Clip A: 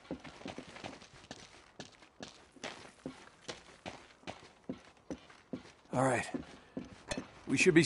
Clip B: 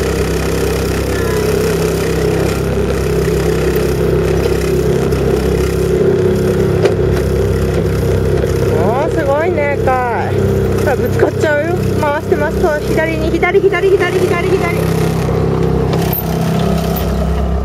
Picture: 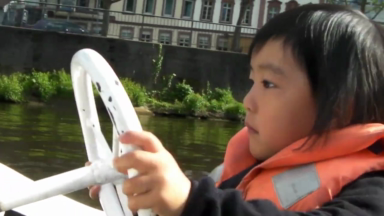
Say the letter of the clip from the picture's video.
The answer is B